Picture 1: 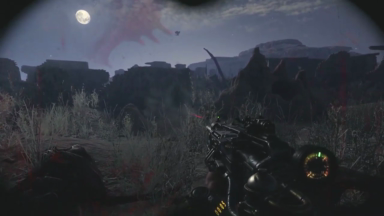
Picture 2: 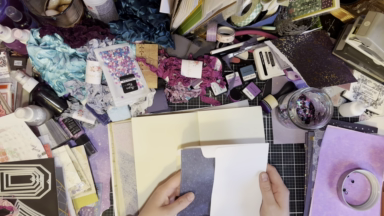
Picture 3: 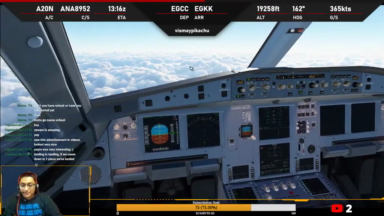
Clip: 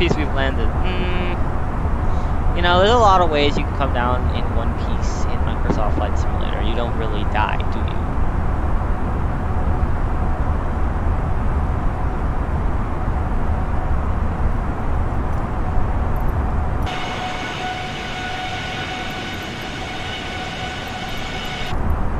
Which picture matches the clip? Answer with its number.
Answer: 3